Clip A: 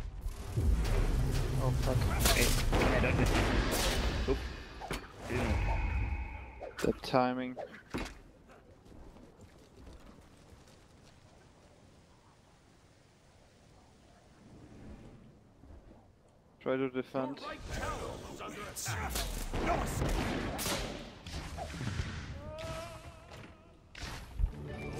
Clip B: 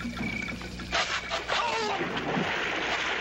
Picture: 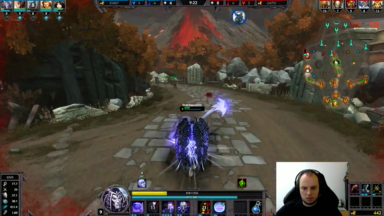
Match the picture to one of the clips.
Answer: A